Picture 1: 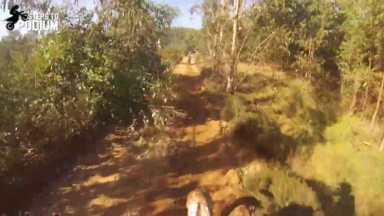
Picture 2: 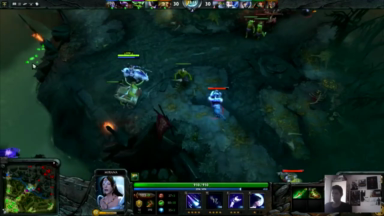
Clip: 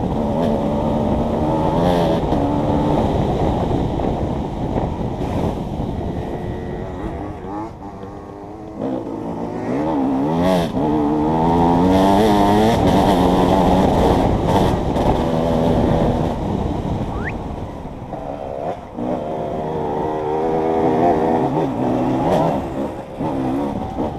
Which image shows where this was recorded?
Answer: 1